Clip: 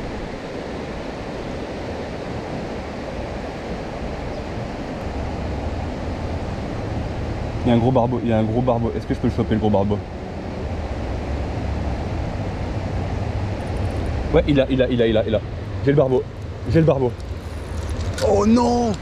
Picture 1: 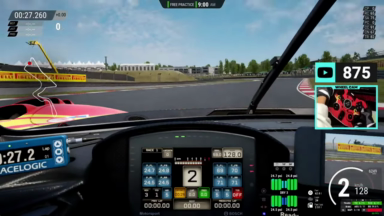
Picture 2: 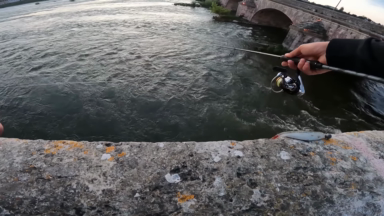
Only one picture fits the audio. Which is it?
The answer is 2